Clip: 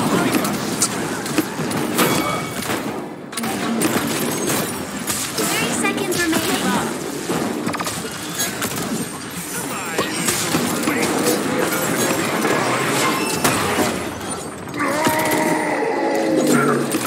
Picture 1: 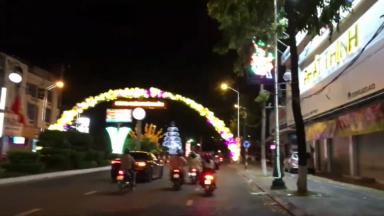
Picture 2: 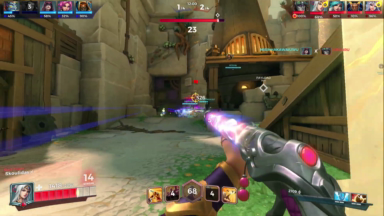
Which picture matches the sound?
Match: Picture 2